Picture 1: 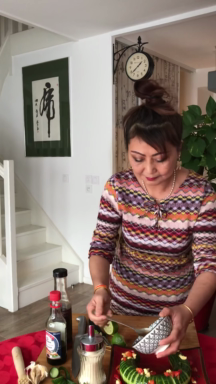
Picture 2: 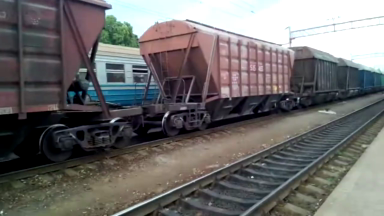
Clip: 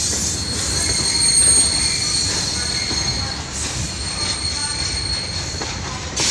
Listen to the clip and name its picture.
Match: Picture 2